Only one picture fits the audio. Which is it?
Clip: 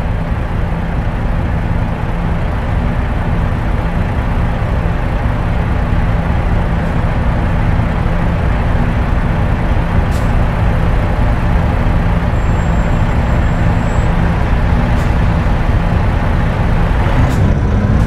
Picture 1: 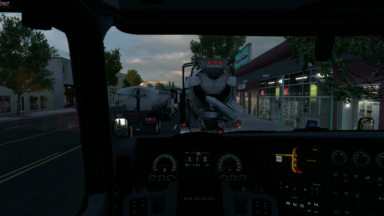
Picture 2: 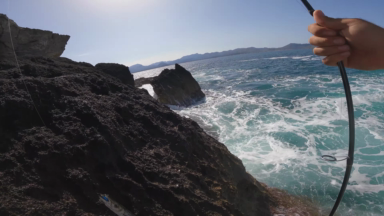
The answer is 1